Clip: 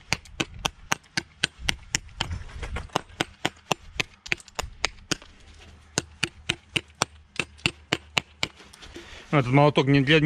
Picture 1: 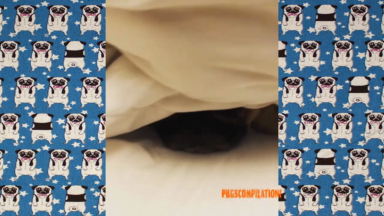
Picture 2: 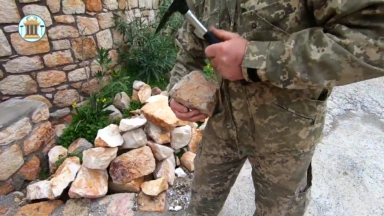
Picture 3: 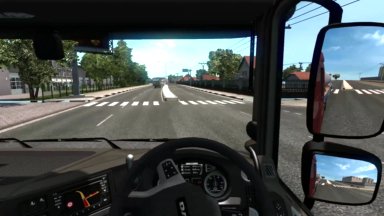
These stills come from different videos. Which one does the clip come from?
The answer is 2